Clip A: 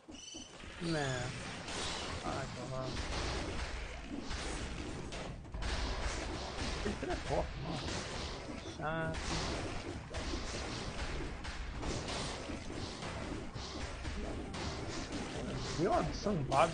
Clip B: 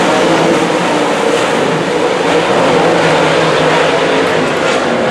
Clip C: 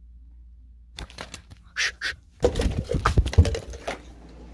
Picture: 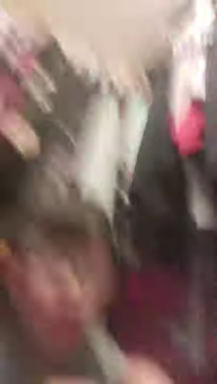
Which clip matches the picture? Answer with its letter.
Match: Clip C